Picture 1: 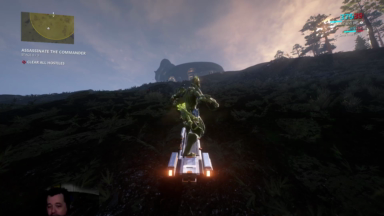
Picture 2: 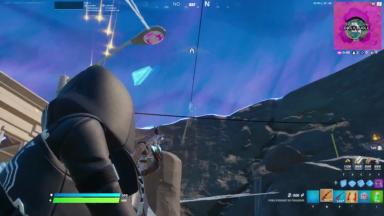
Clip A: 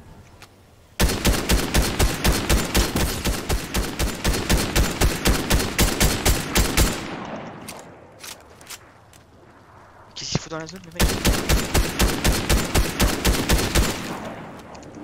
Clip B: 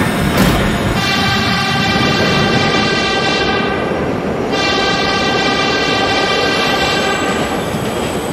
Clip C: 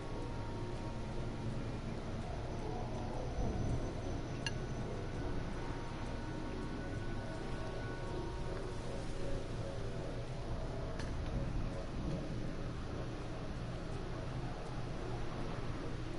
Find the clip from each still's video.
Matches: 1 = C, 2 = A